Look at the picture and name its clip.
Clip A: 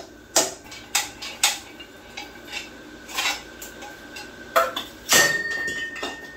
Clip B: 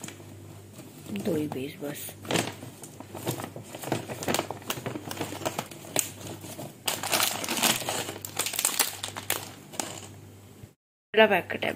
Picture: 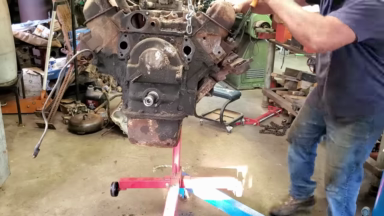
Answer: A